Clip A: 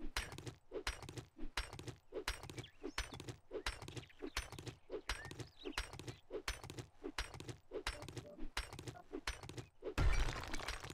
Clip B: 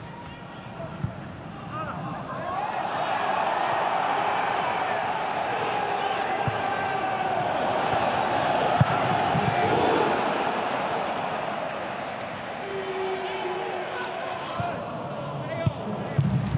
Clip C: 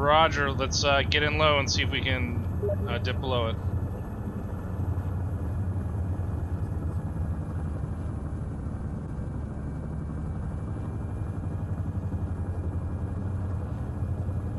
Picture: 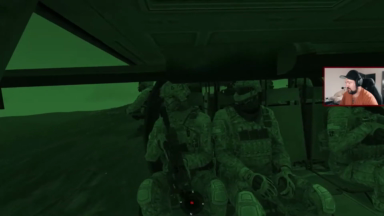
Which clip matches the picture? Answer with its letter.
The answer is C